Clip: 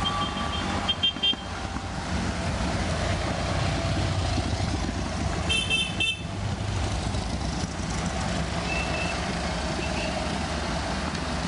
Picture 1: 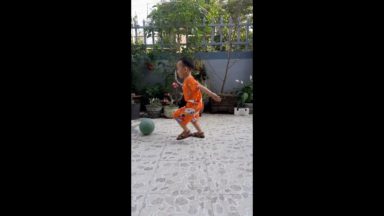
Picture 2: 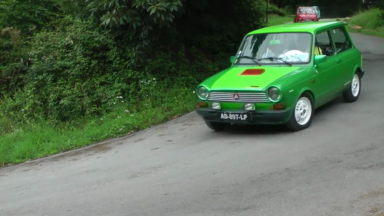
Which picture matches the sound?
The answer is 2